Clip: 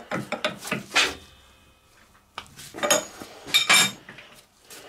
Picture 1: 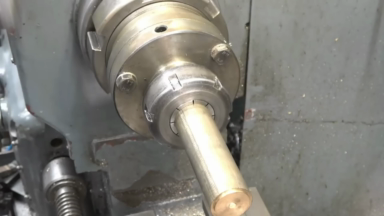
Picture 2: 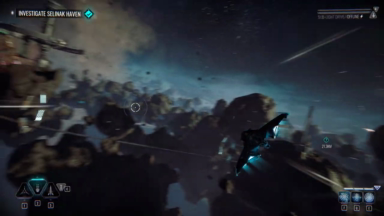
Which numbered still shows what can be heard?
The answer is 1